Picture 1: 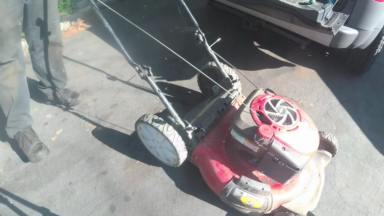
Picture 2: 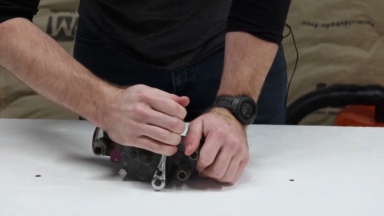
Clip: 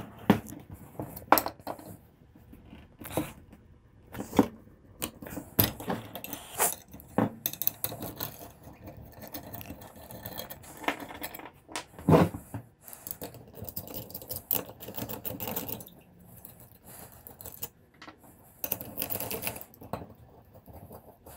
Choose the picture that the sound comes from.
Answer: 2